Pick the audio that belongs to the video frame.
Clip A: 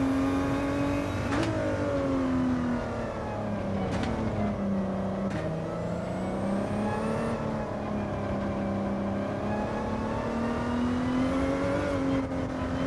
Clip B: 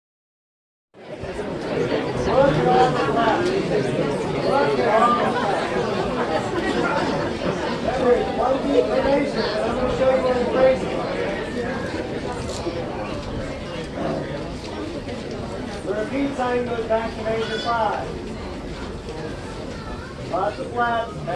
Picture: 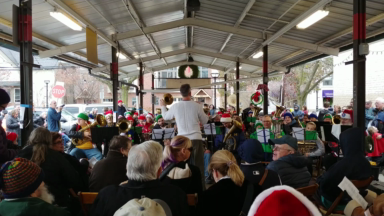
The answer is B